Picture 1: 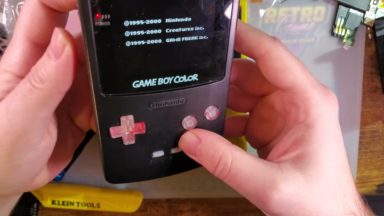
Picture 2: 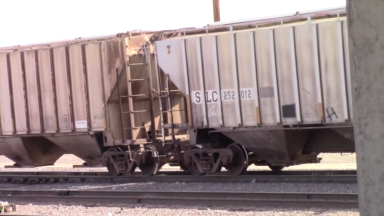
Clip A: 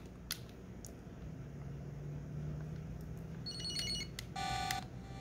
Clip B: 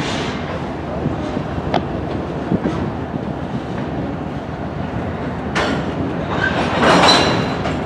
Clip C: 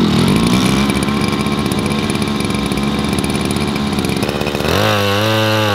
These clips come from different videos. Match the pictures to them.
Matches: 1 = A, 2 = B